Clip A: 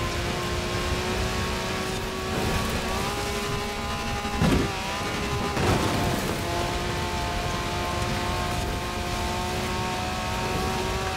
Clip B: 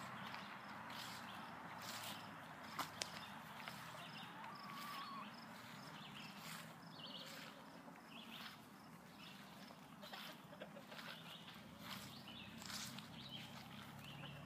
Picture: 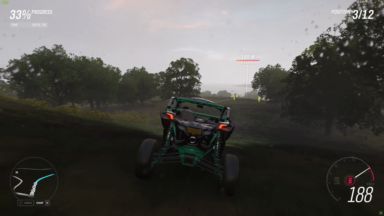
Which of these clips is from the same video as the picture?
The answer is A